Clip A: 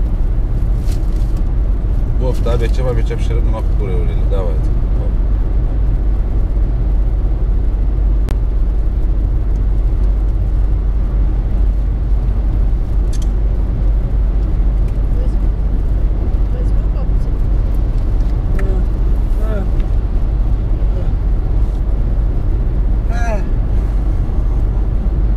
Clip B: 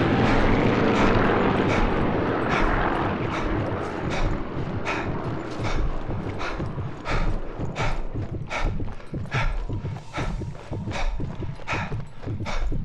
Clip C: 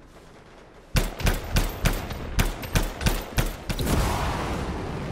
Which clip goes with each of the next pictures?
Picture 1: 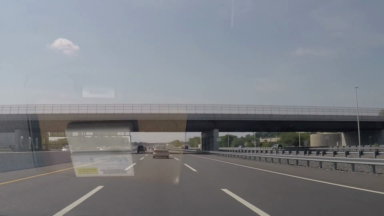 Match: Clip A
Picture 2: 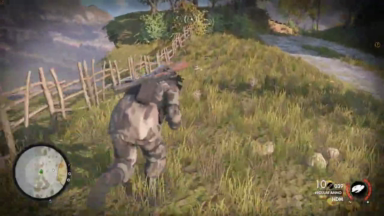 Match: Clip B